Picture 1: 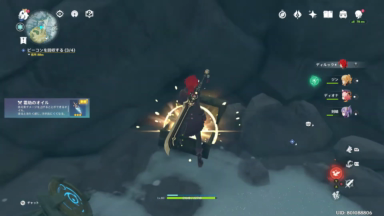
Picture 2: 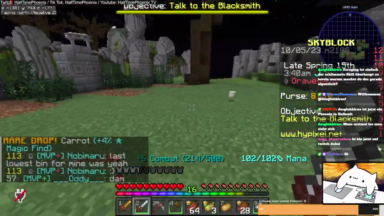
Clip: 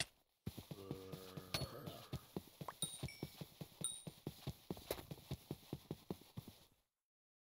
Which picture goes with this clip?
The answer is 2